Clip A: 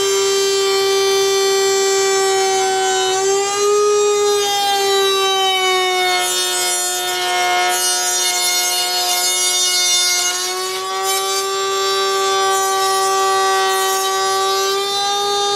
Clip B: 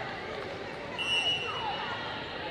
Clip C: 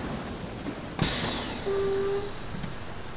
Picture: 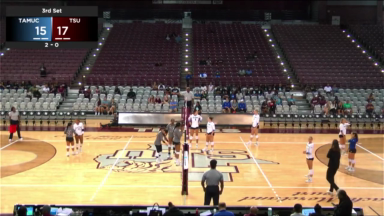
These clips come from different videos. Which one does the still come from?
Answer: B